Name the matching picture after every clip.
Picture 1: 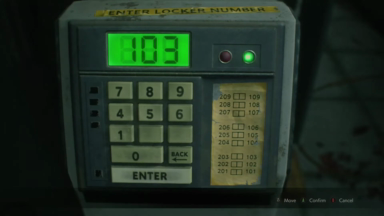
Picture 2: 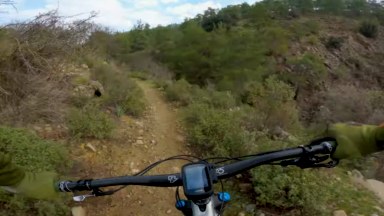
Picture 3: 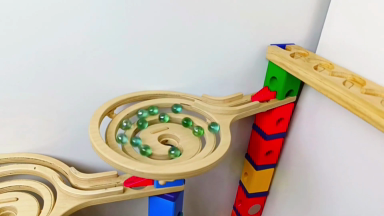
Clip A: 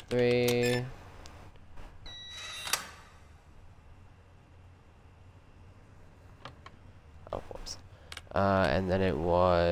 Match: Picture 1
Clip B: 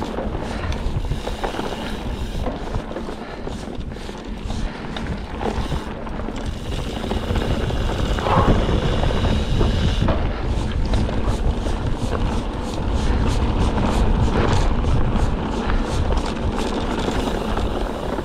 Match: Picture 2